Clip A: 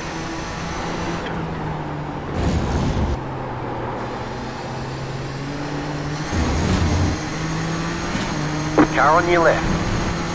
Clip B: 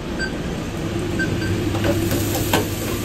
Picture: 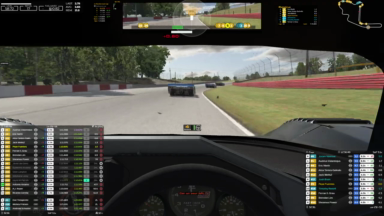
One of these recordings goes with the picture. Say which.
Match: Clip A